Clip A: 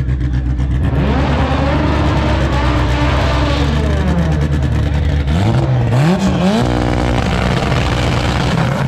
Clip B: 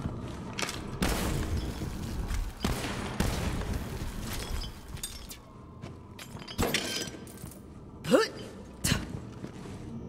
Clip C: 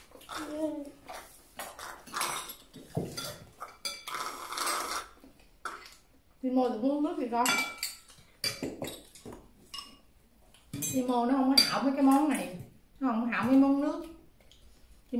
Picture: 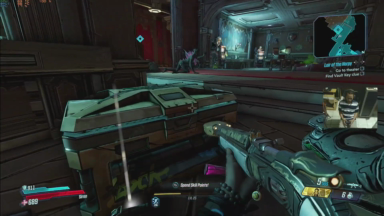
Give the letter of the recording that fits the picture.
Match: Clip B